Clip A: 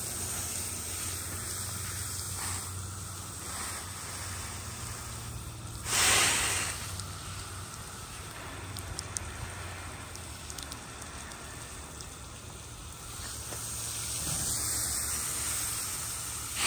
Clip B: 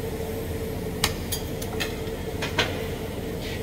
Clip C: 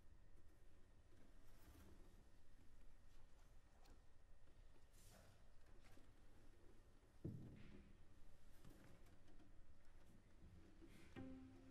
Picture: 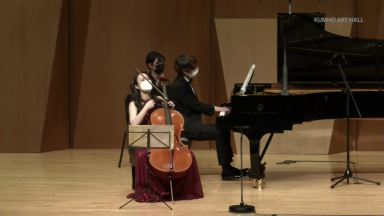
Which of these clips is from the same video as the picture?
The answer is C